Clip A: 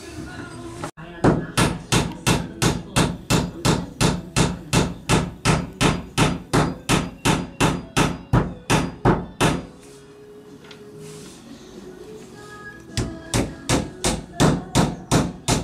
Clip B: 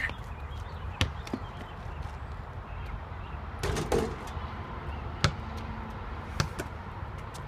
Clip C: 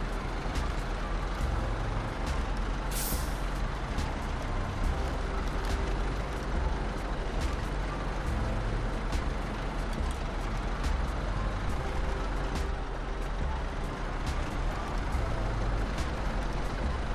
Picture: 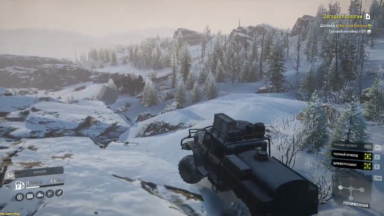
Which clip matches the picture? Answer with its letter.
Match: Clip C